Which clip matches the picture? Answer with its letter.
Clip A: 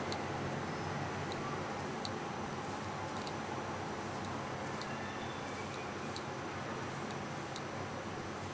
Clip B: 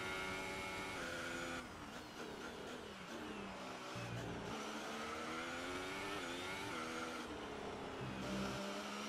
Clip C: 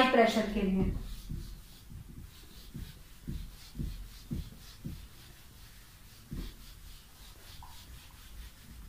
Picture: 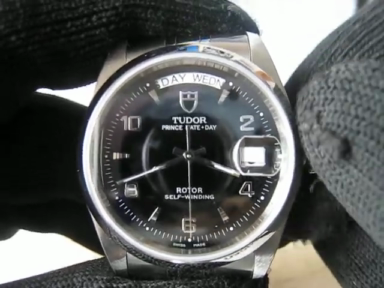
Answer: A